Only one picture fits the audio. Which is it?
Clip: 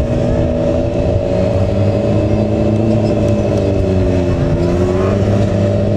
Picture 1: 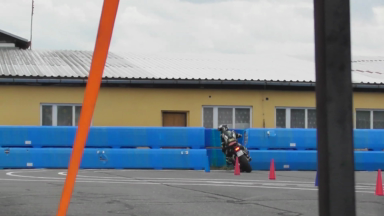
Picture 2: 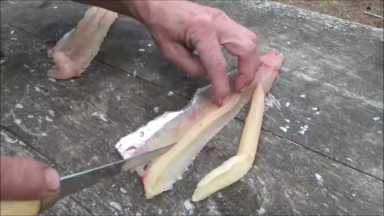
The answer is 1